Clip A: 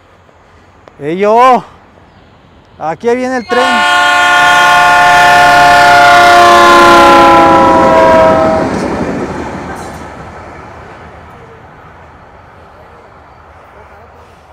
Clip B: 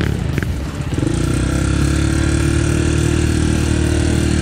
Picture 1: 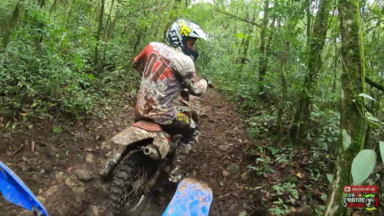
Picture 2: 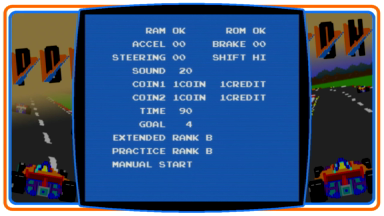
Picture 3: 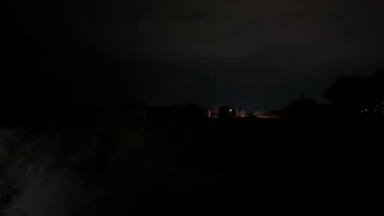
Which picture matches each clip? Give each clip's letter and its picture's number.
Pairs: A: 3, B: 1